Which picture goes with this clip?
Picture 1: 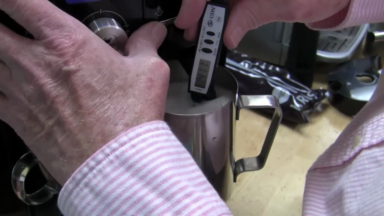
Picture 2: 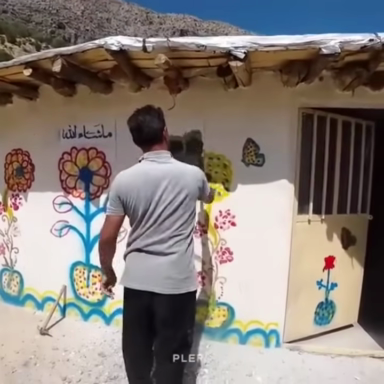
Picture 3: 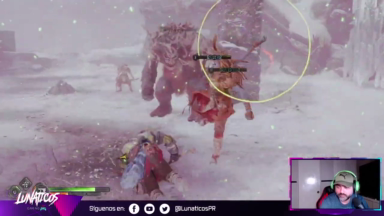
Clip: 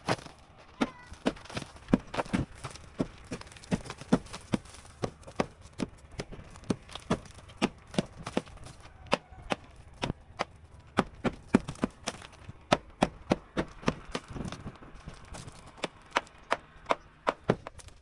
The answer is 2